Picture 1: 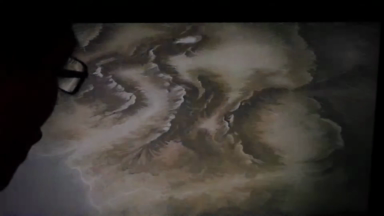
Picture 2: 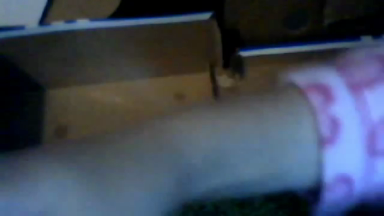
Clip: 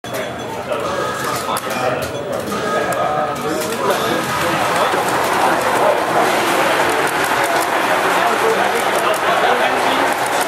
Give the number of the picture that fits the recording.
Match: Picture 1